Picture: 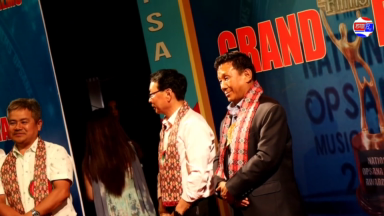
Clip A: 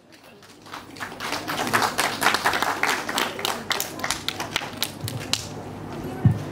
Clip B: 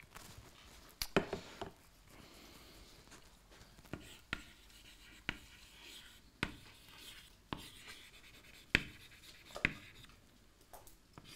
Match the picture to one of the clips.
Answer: A